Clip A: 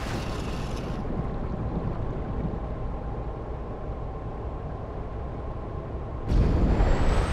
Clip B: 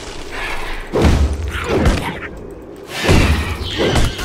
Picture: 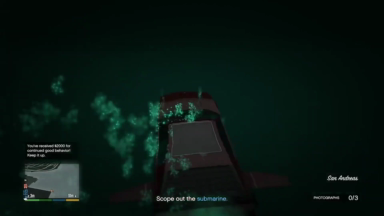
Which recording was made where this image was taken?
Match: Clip A